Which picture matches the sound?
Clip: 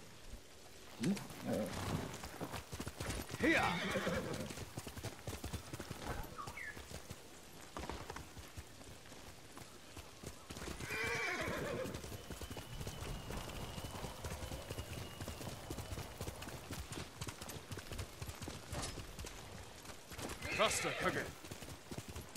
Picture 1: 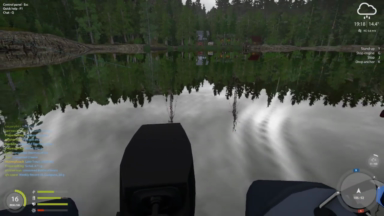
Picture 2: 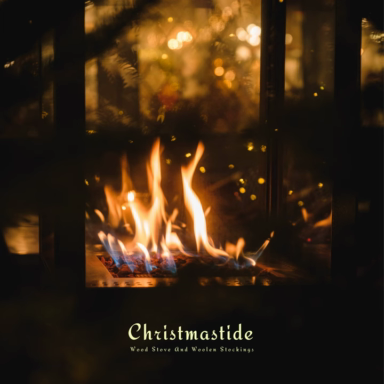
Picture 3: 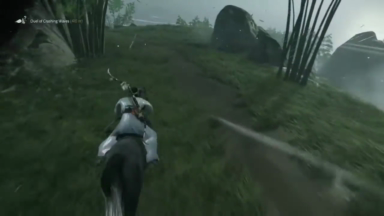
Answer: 3